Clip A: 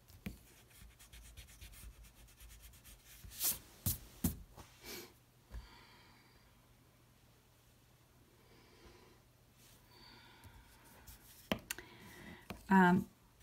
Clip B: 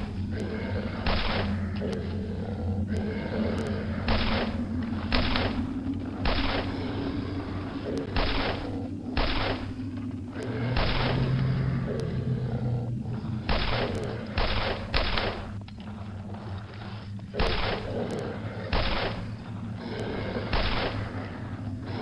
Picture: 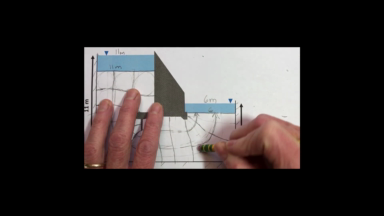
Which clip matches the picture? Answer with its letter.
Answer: A